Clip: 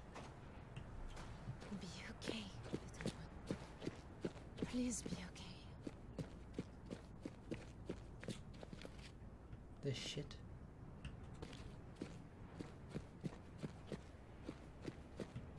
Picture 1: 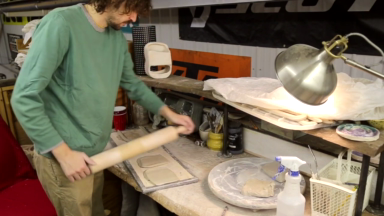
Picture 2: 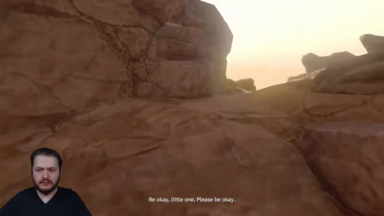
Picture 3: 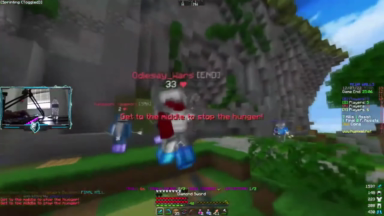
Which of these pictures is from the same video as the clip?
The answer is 2